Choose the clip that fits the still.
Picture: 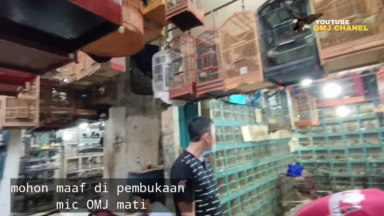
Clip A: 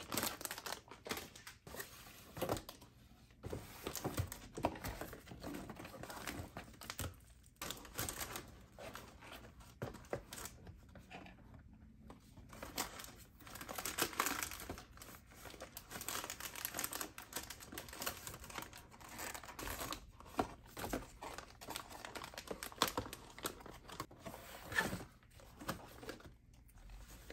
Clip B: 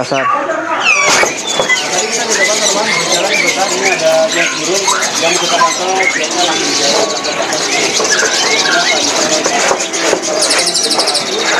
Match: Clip B